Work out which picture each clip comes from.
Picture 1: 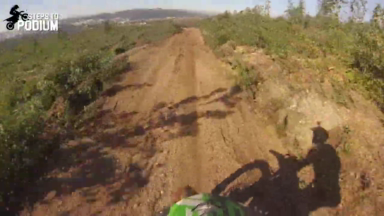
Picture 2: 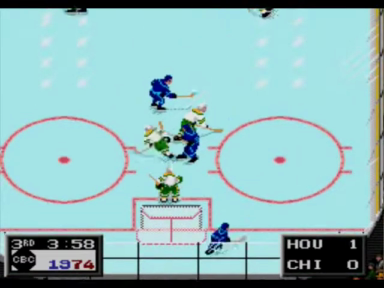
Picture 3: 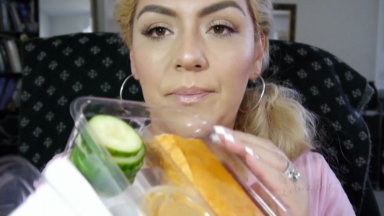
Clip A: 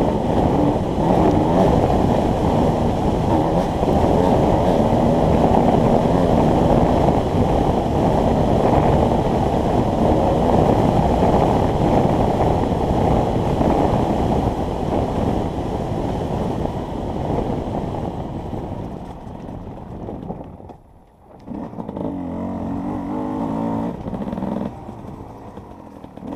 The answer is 1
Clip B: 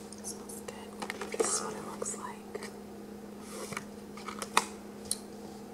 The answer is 3